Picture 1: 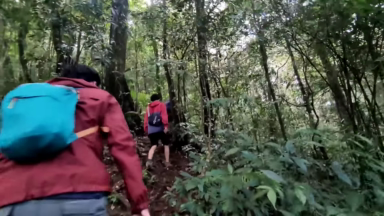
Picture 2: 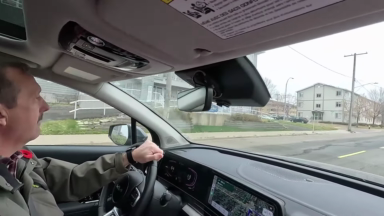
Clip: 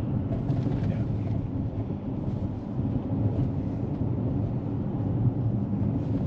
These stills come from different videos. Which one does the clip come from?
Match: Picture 2